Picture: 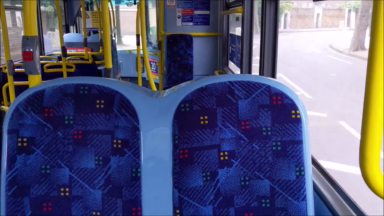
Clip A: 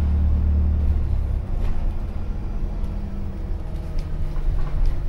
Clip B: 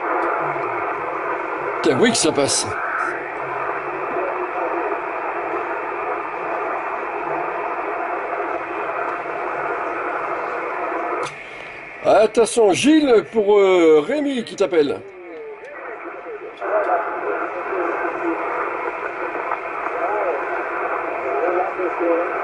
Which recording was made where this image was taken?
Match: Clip A